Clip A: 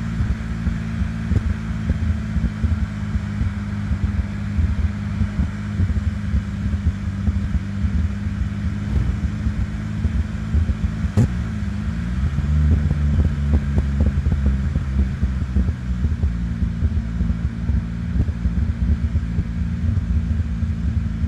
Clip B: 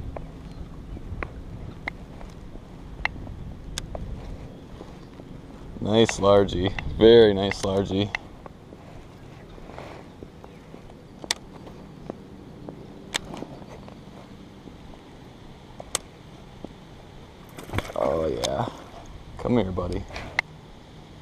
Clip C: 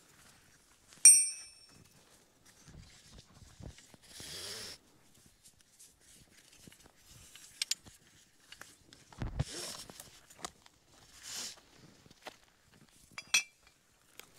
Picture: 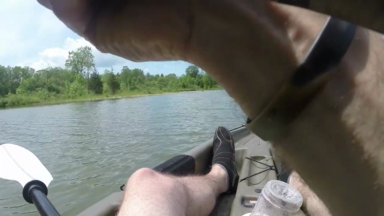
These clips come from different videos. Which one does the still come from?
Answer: B